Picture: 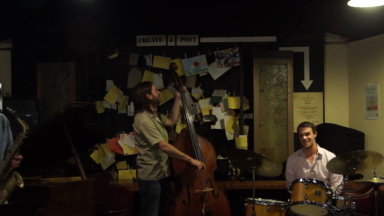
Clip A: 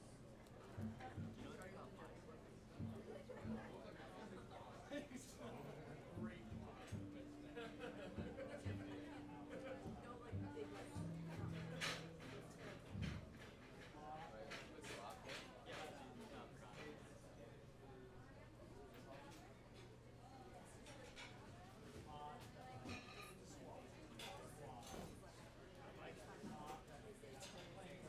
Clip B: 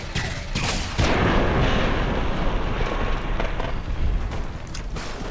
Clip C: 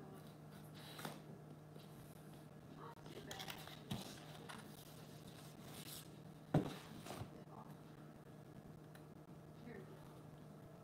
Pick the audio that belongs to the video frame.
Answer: A